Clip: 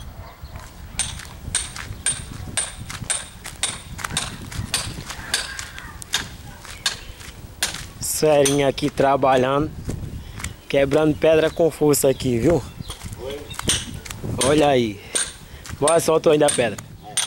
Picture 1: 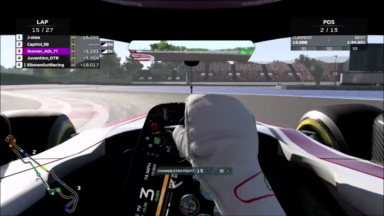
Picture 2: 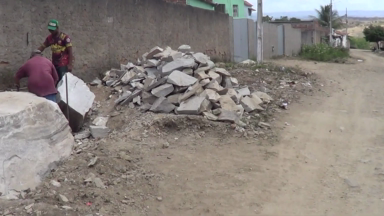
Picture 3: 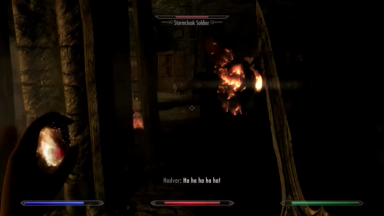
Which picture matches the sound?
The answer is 2